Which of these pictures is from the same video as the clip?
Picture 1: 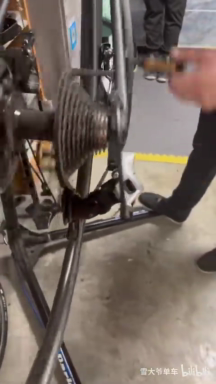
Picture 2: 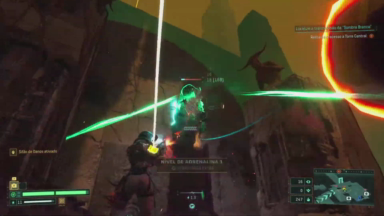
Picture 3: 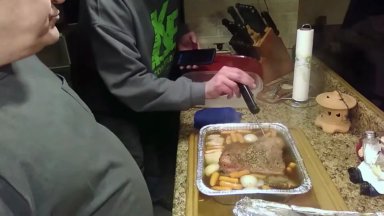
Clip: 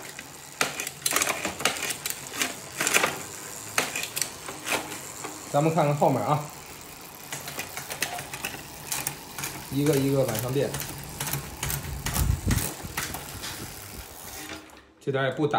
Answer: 1